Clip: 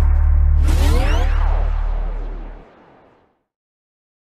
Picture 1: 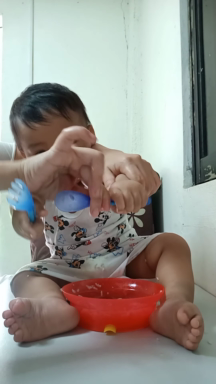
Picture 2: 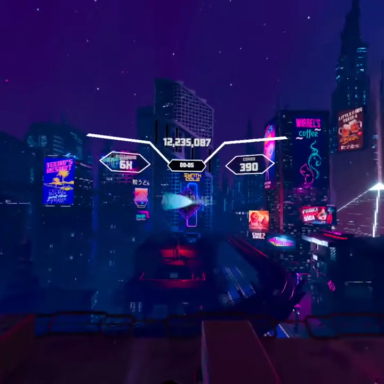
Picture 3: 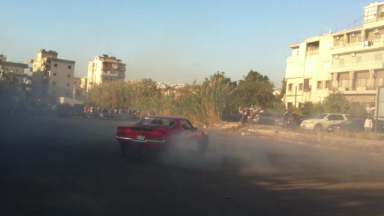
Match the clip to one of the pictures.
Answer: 2